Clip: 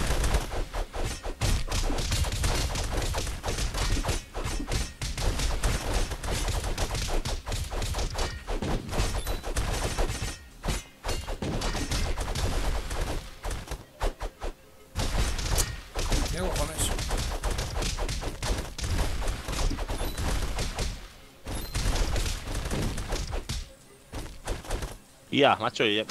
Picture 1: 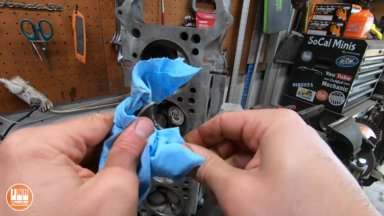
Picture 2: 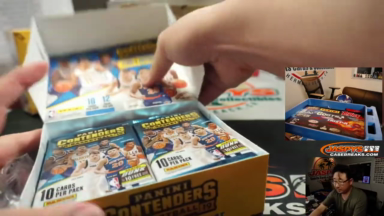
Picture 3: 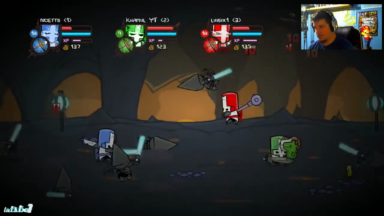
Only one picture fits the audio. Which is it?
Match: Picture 3